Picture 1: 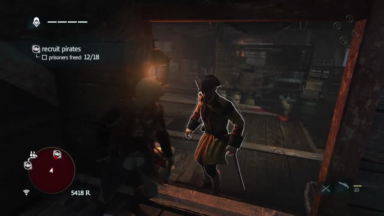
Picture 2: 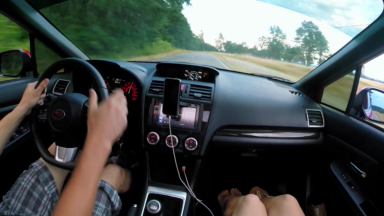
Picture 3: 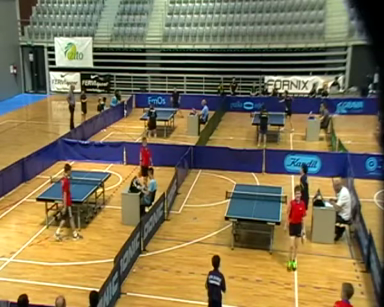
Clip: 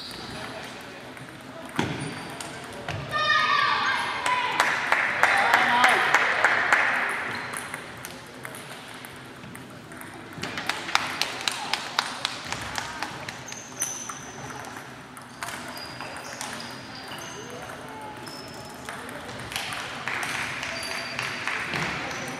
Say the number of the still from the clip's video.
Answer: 3